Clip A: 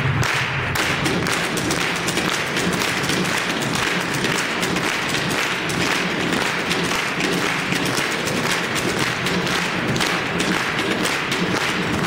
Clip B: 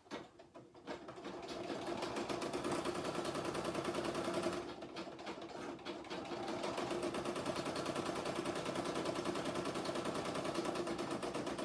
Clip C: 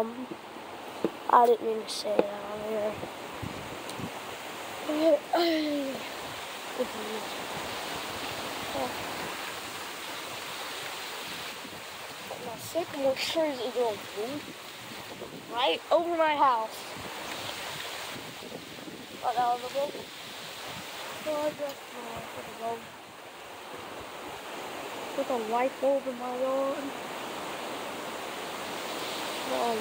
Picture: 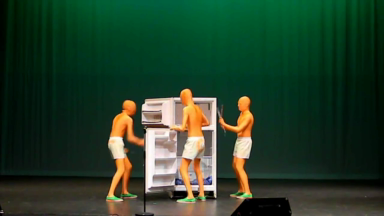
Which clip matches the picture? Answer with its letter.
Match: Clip A